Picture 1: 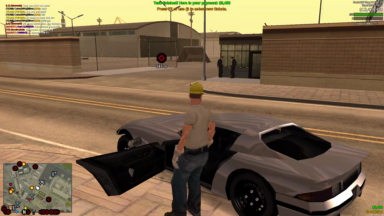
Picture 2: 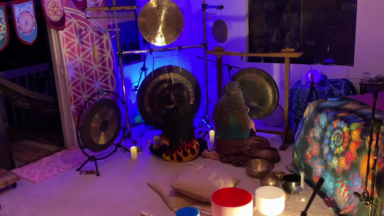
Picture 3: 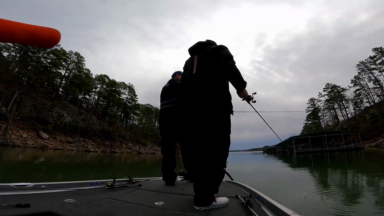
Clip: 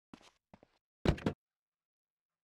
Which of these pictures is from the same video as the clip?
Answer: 1